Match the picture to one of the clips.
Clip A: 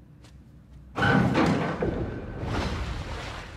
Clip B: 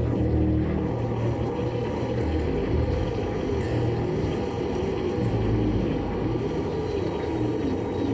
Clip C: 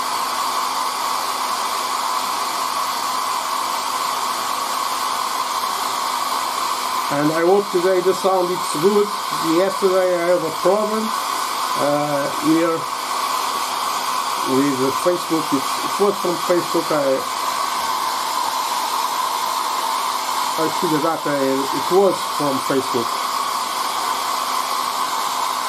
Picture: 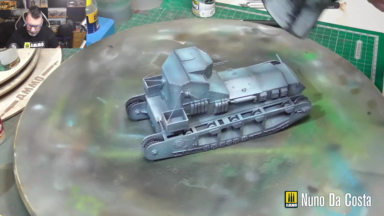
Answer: C